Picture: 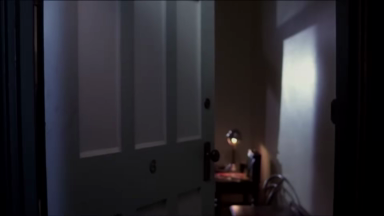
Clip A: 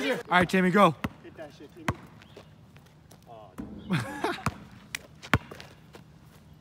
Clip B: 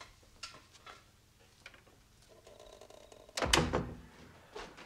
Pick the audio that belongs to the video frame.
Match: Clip B